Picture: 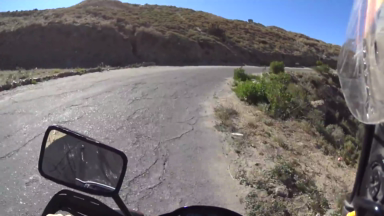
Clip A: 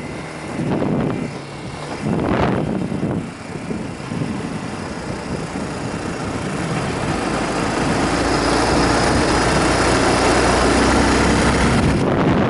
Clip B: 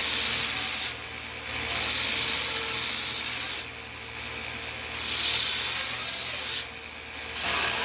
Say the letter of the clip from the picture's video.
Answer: A